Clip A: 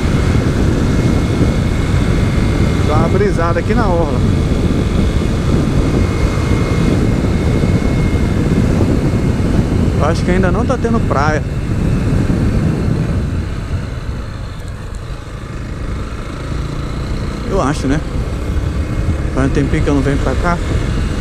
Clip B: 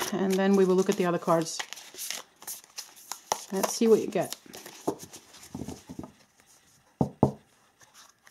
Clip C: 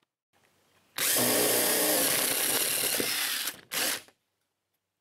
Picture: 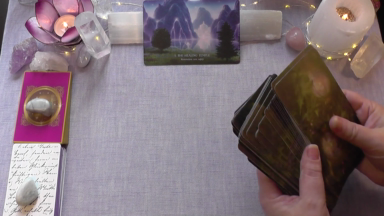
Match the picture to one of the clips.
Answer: B